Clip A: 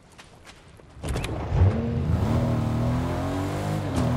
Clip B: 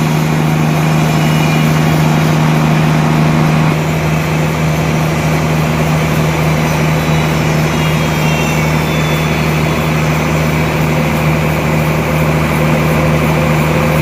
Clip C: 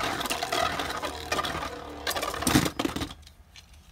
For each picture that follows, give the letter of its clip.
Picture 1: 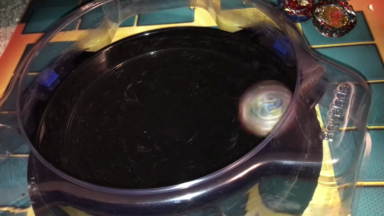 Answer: C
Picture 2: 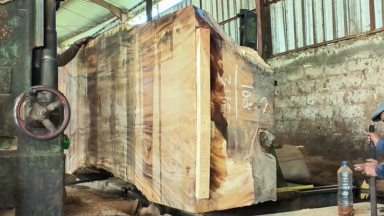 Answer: B